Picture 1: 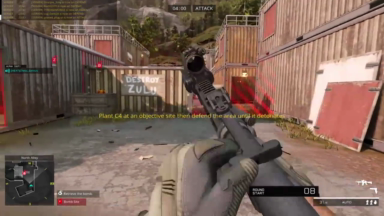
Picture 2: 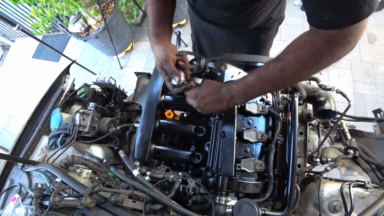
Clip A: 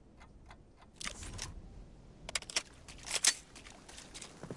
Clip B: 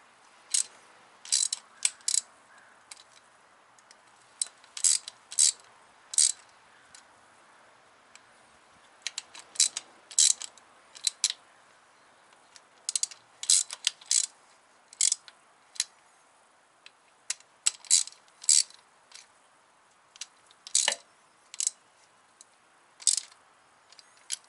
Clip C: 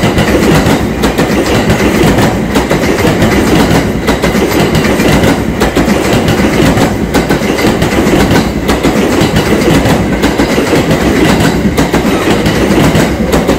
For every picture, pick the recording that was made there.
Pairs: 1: A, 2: B